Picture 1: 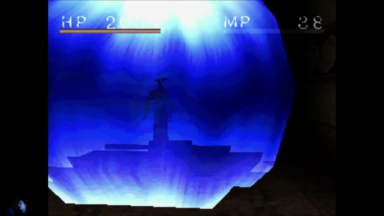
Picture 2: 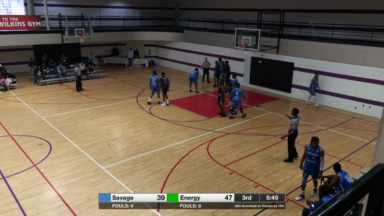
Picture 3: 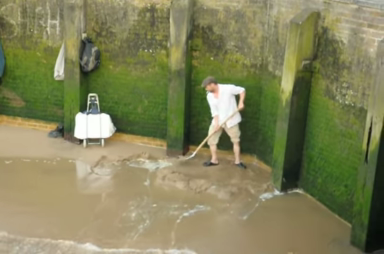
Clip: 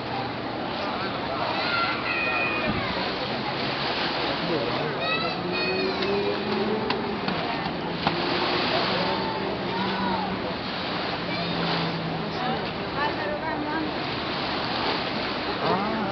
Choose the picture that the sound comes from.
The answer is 3